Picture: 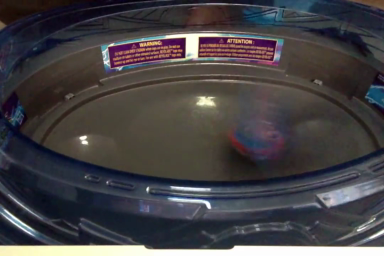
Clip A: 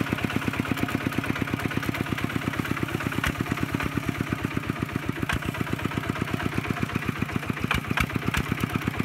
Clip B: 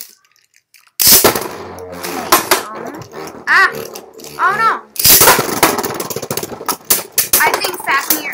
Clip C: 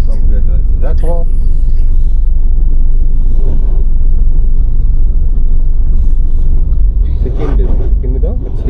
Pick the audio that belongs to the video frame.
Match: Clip B